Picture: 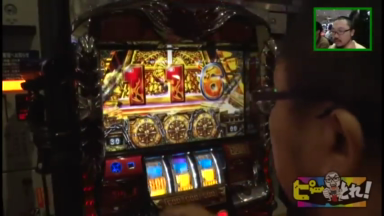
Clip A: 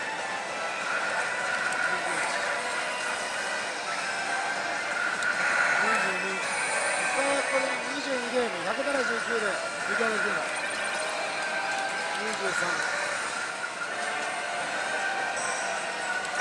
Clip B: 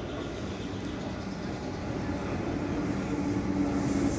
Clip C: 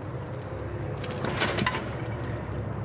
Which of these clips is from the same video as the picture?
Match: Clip A